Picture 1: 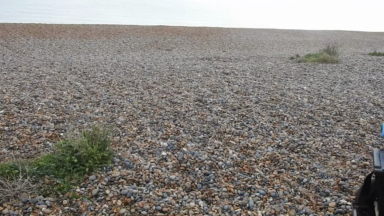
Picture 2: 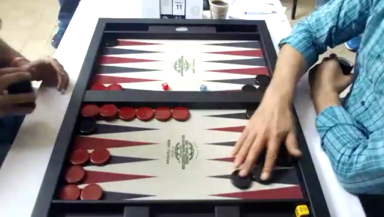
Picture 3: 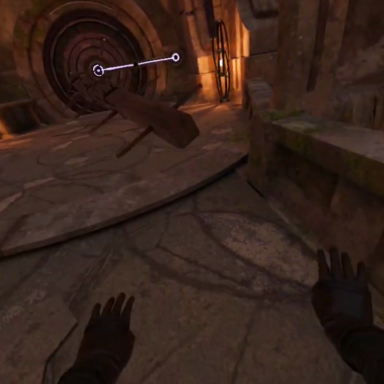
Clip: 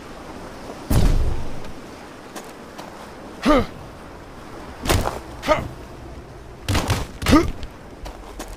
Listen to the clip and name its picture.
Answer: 3